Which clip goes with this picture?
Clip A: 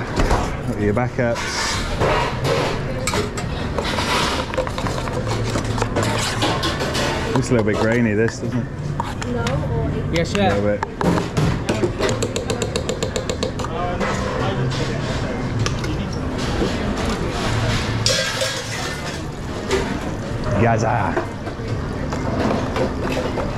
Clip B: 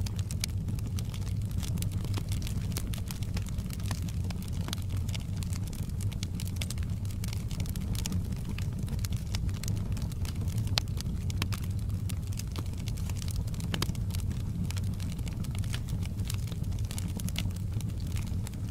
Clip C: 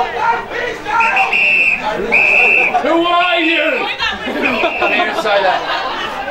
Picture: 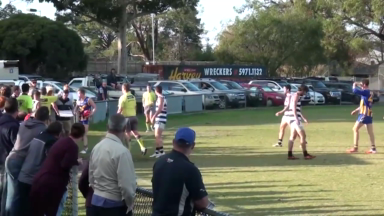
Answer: C